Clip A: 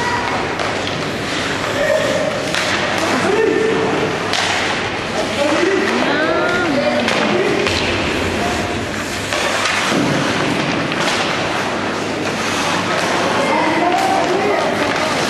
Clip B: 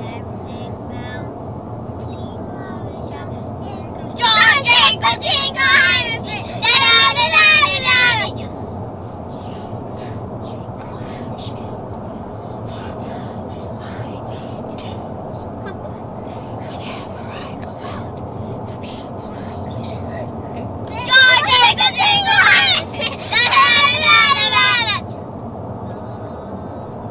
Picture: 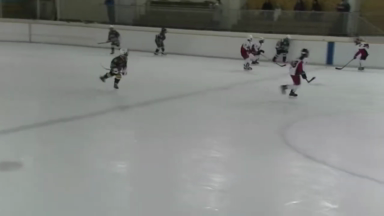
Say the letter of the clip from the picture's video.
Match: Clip A